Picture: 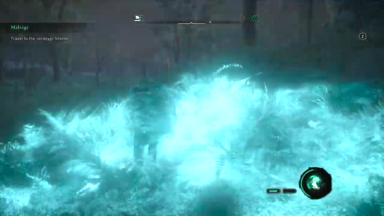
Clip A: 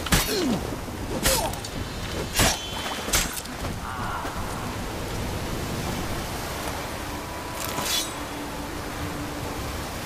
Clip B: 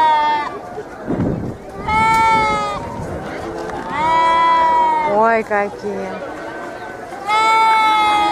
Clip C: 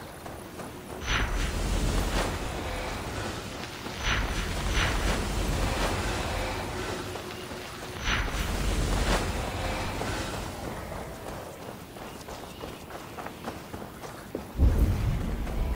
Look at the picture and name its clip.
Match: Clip C